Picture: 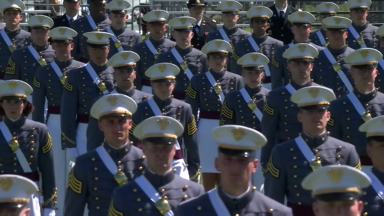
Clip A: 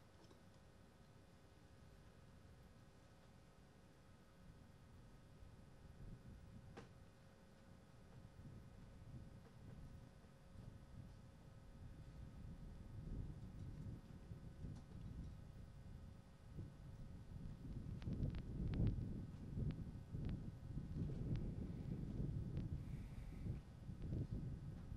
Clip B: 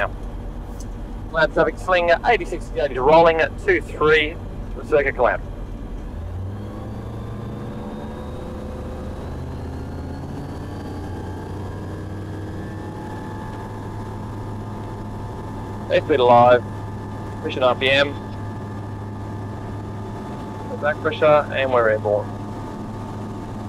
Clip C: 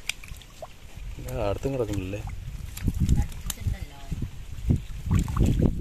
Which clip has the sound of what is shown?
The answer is A